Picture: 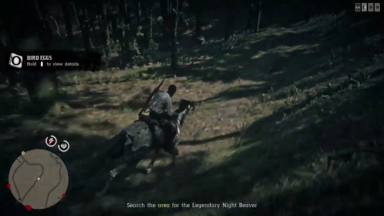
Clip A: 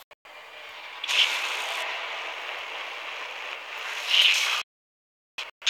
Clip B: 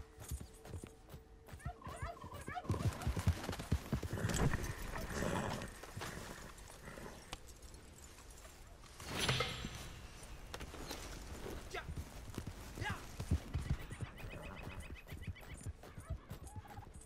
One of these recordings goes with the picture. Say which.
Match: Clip B